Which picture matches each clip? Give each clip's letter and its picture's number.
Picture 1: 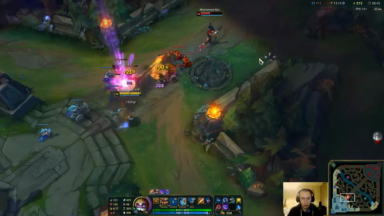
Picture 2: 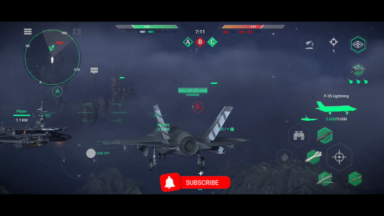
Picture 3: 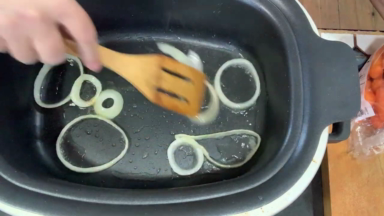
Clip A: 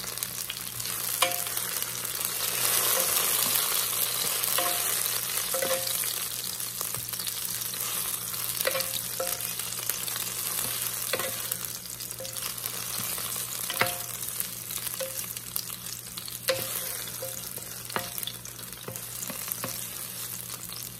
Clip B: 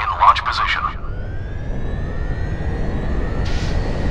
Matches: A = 3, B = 2